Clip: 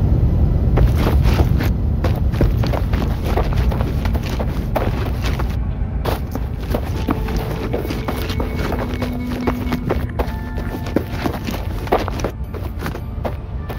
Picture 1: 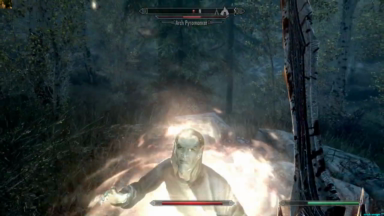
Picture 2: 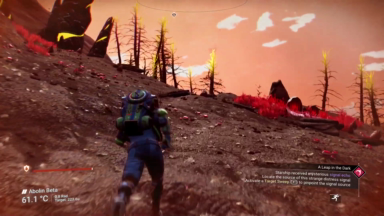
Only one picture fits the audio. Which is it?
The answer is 2